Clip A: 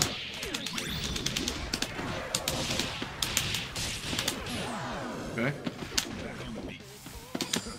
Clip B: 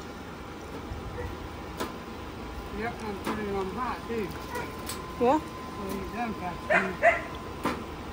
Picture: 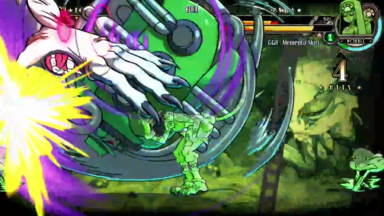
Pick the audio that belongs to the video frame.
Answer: A